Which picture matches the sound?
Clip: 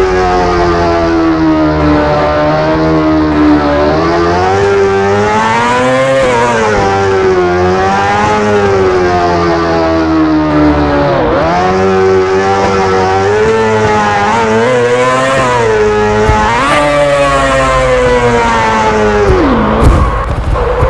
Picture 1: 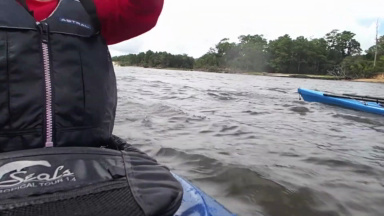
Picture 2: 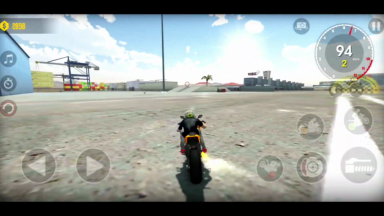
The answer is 2